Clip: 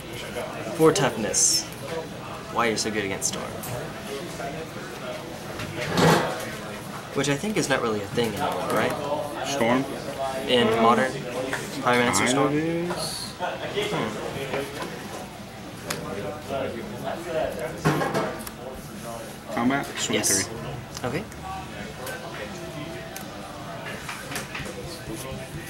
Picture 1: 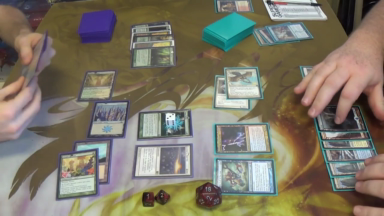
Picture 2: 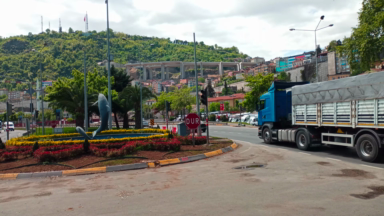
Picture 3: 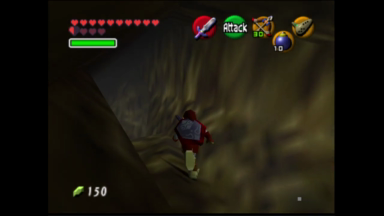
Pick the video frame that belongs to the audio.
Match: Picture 1